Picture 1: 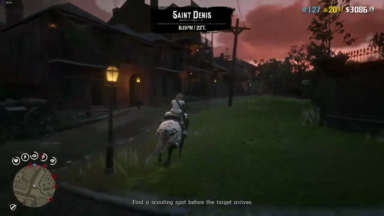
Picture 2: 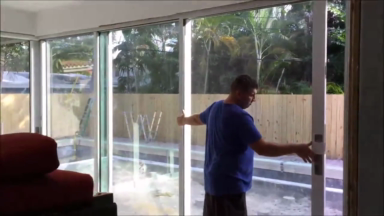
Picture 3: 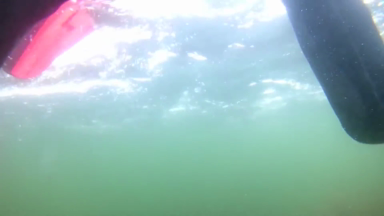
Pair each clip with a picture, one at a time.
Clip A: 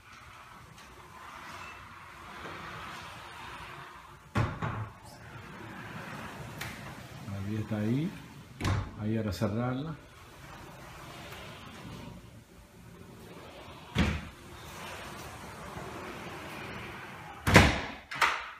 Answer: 2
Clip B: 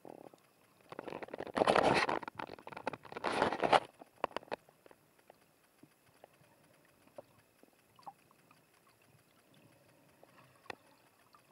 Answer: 3